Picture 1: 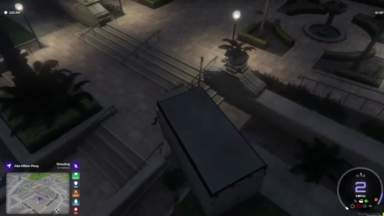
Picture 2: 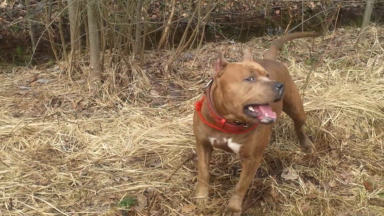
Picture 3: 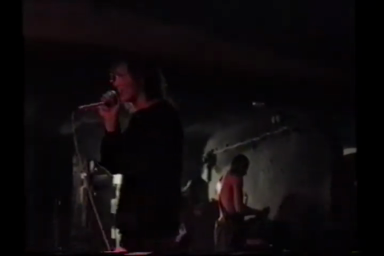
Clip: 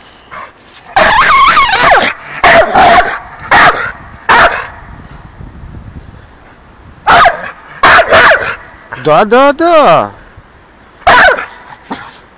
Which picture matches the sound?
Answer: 2